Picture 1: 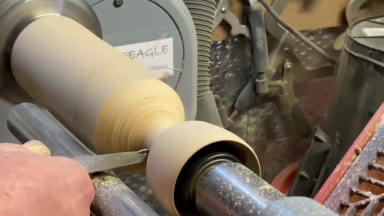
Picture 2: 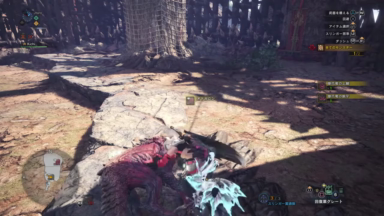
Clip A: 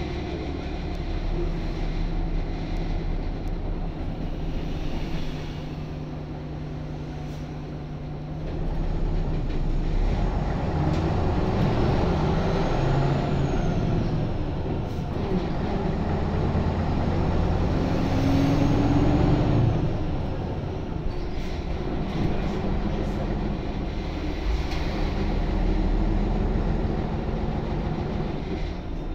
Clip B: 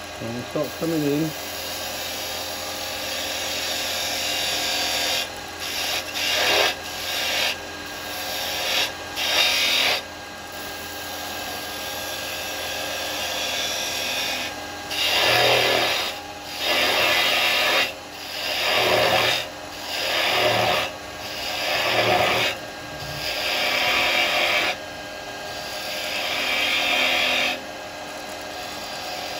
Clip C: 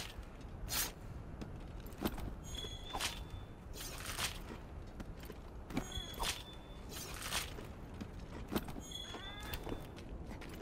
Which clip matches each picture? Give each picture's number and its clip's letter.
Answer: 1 B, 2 C